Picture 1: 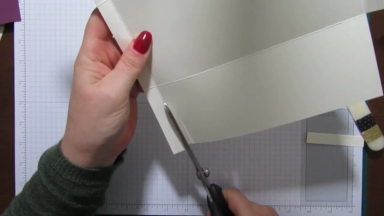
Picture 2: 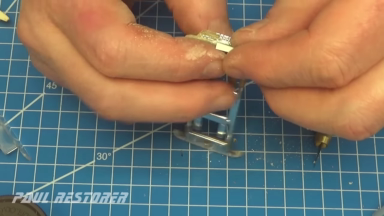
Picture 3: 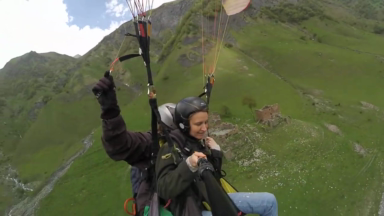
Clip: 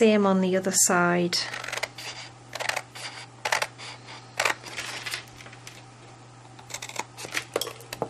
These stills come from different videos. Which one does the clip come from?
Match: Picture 1